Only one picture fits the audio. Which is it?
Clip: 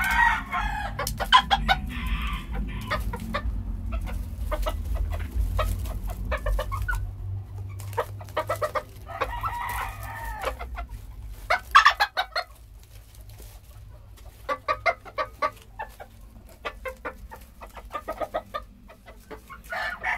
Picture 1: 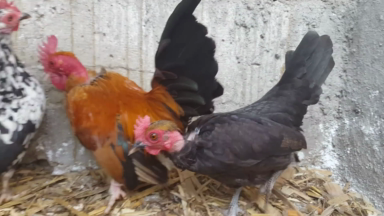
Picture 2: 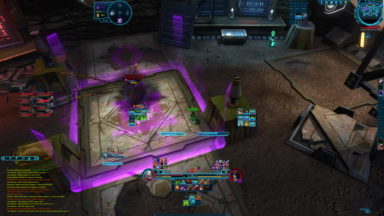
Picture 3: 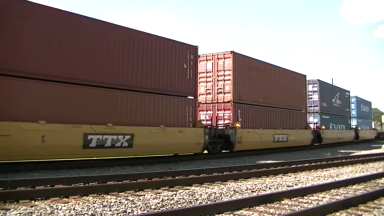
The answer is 1